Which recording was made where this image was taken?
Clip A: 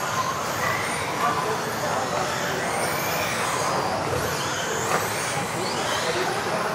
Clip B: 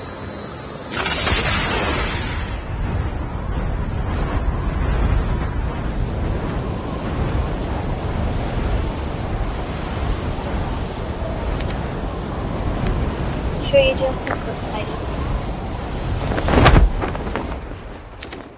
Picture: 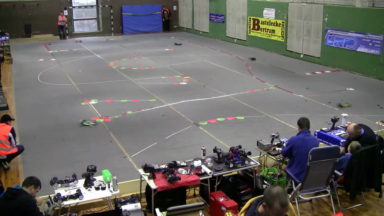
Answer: A